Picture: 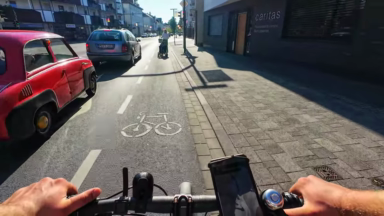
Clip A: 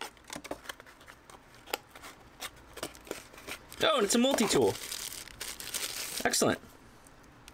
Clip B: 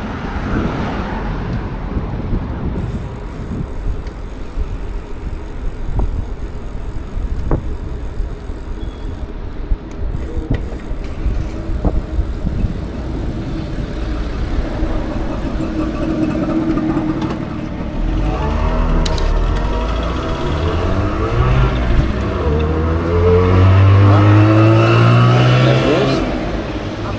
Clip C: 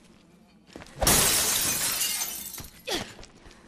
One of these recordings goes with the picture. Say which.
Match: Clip B